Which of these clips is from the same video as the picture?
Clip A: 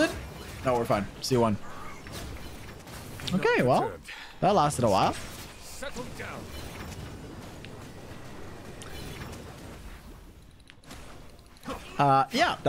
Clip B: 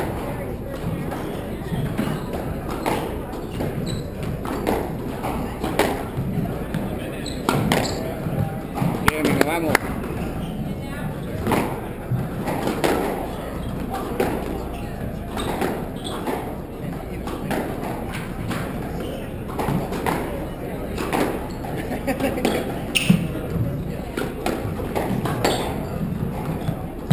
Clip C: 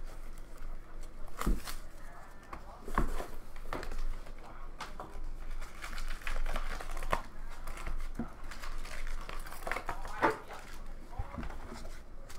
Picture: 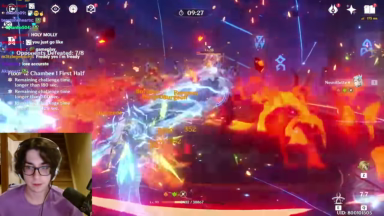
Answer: A